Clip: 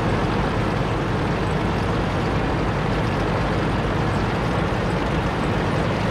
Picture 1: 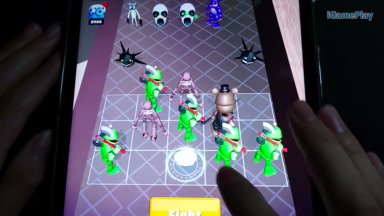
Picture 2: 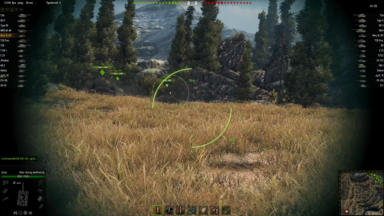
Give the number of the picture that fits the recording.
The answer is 2